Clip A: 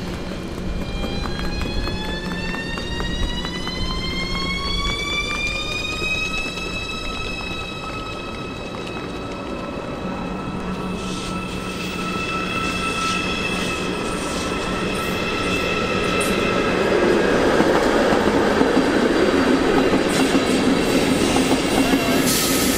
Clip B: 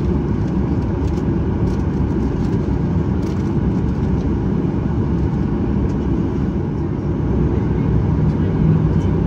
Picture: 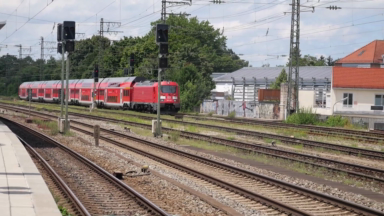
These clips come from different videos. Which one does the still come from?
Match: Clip A